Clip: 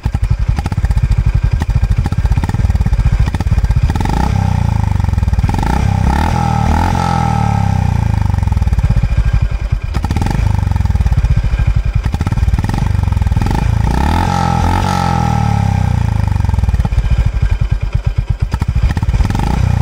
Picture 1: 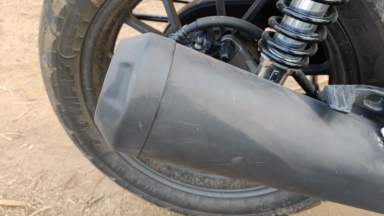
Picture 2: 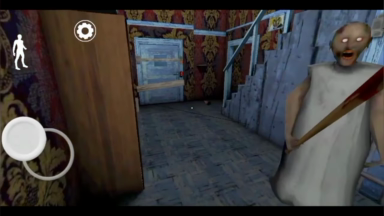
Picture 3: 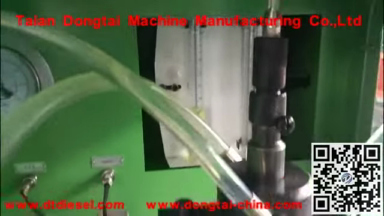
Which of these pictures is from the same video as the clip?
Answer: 1